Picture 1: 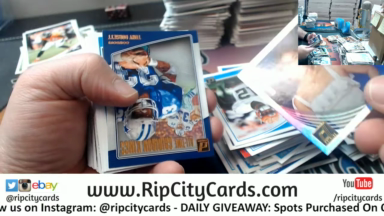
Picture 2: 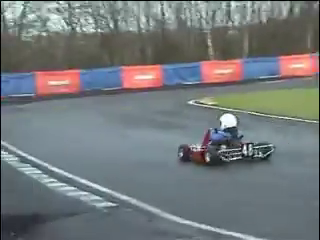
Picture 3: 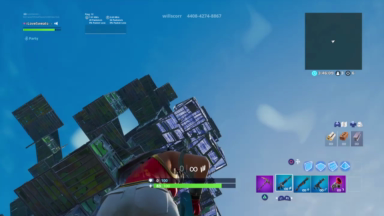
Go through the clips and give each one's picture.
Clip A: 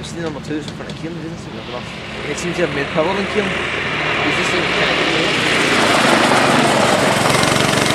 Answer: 2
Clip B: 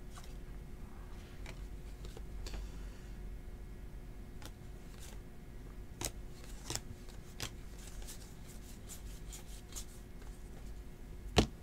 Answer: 1